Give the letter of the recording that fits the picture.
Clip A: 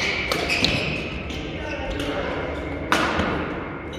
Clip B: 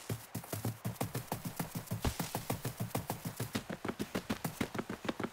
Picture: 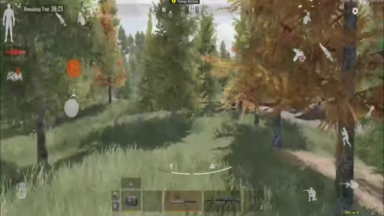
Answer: B